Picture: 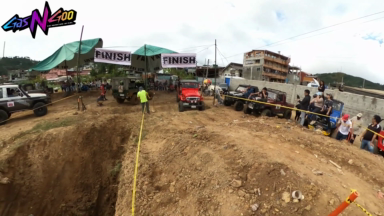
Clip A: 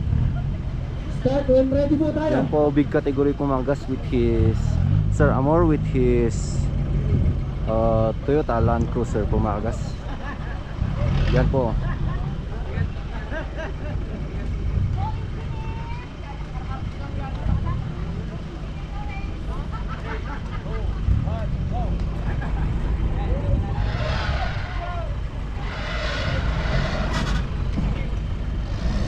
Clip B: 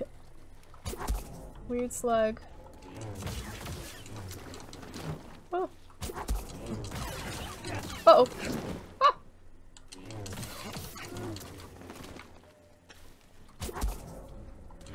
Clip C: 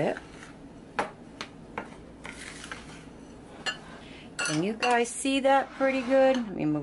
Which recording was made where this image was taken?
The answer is A